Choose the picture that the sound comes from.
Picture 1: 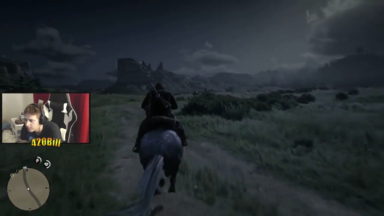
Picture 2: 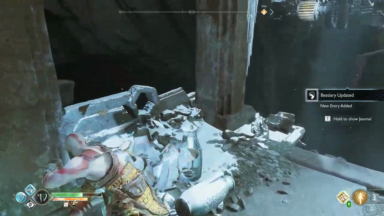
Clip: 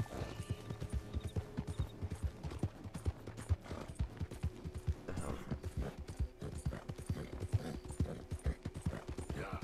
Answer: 1